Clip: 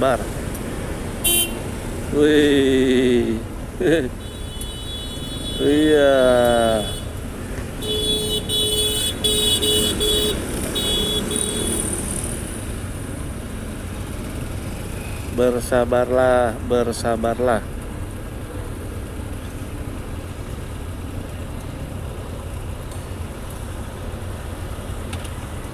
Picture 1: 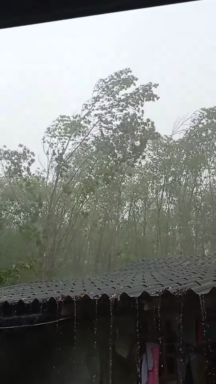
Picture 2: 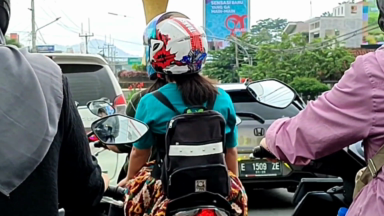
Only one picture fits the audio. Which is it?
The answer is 2